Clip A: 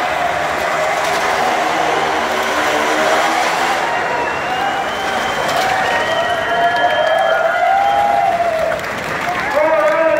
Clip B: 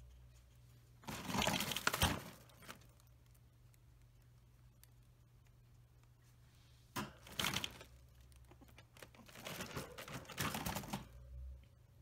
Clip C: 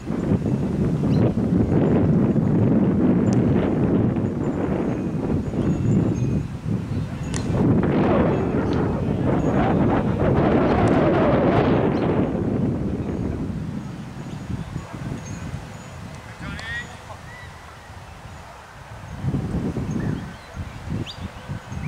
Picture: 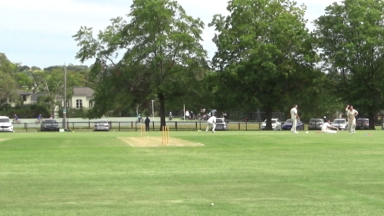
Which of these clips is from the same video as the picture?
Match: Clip C